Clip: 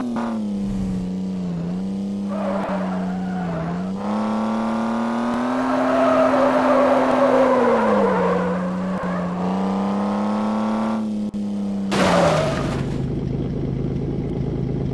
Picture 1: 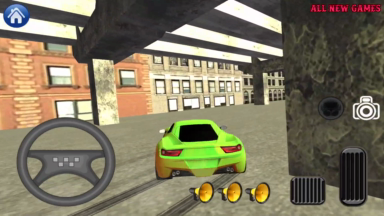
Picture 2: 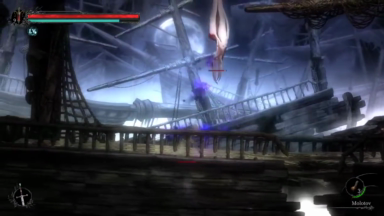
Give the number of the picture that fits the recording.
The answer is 1